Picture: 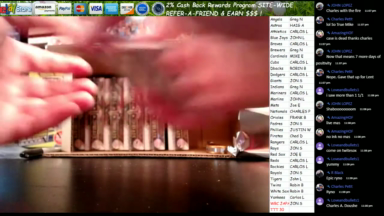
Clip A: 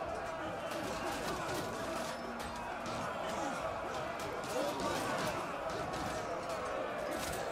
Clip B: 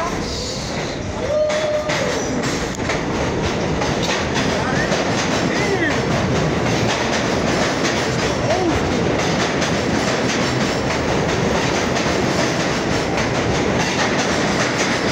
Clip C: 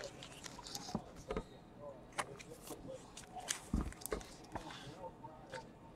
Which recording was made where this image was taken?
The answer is C